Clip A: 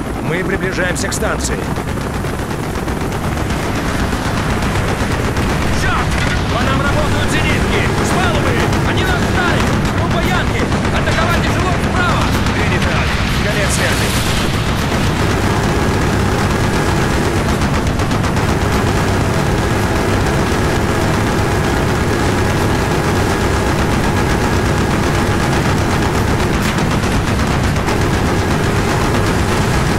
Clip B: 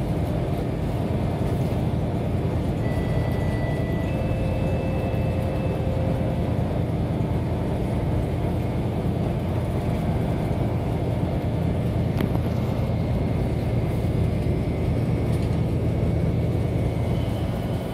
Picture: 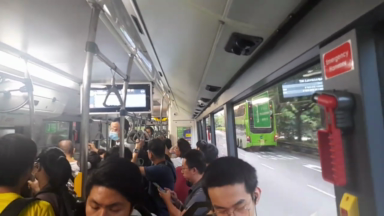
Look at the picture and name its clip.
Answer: B